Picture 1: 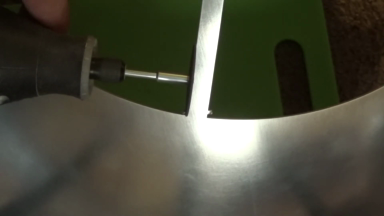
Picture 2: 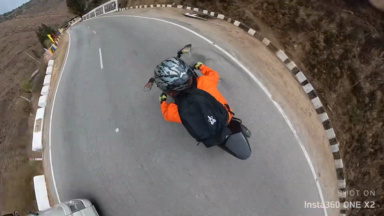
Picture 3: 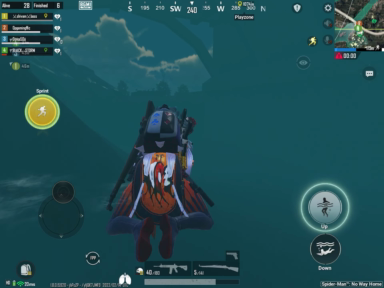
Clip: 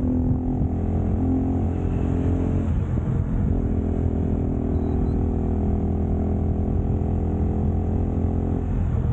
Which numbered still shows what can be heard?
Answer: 2